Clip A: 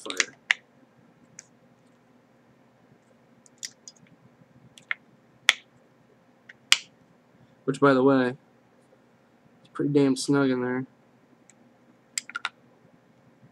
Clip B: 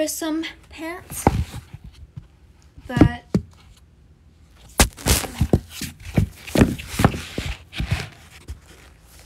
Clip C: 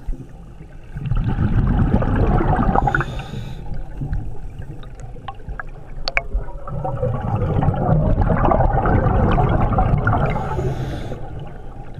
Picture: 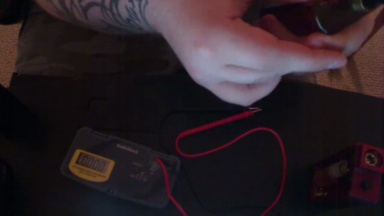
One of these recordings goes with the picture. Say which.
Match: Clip A